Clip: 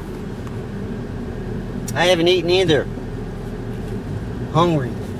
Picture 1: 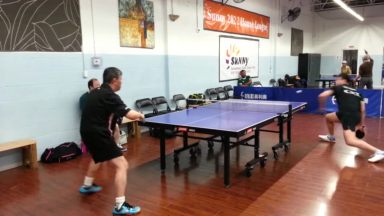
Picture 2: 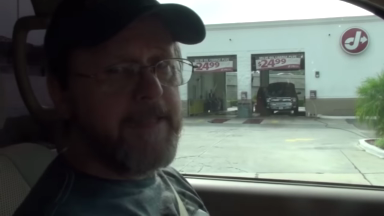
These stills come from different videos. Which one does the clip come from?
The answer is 2